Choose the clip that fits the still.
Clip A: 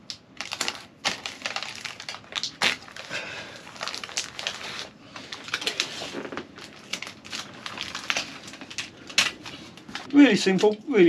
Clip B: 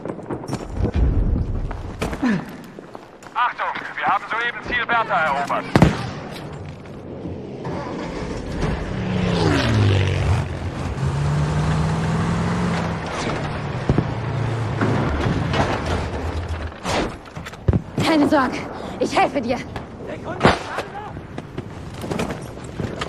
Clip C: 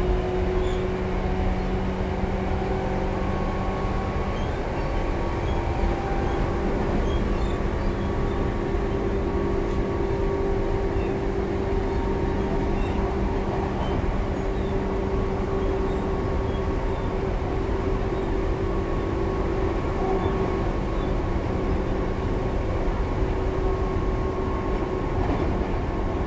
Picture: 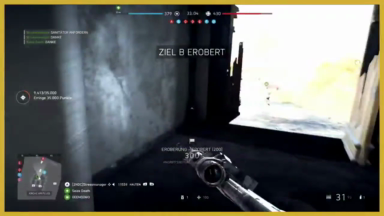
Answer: B